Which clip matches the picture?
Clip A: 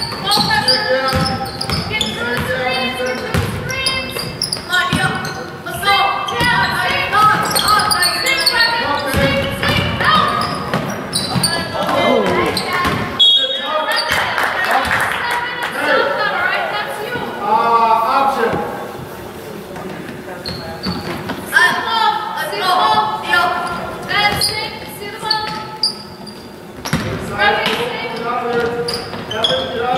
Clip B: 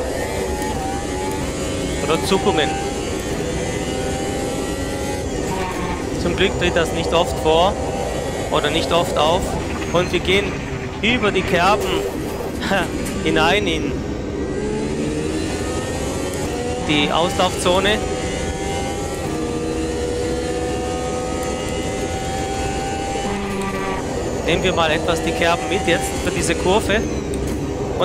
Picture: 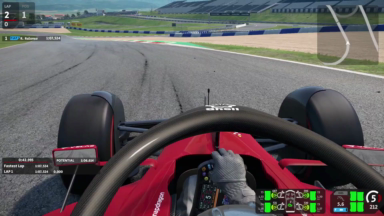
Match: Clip B